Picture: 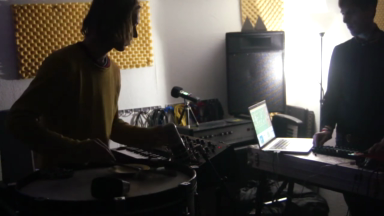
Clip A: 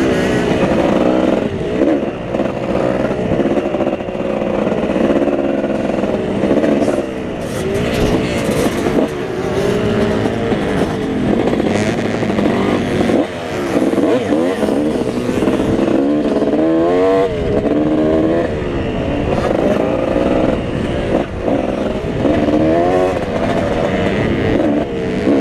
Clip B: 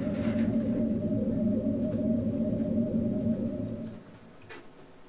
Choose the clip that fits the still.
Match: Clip B